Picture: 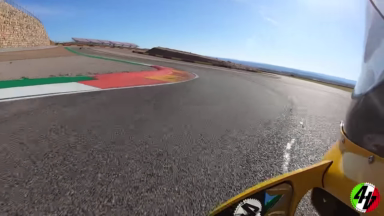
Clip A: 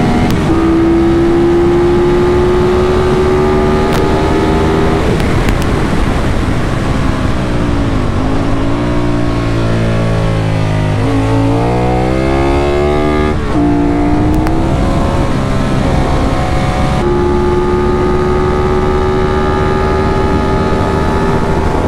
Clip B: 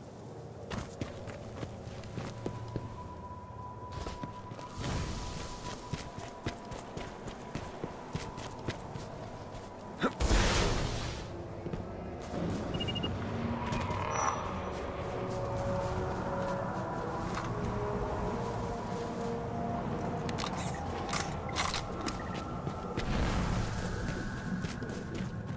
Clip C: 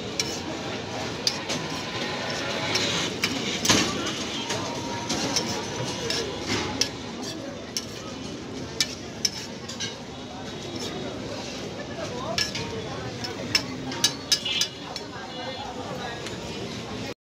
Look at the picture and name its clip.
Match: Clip A